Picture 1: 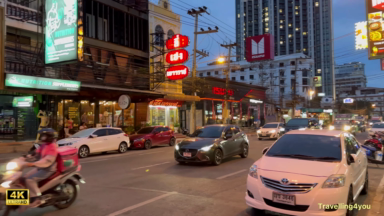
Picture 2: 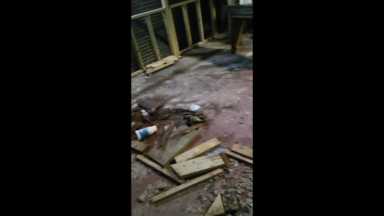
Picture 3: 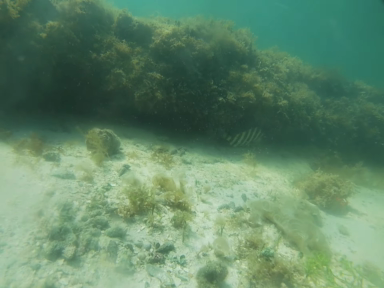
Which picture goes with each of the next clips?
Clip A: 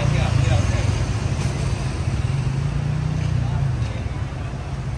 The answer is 1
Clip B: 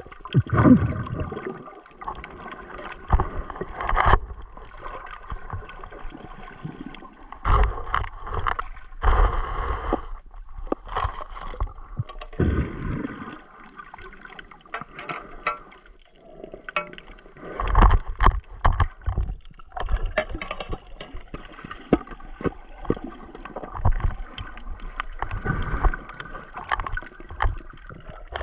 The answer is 3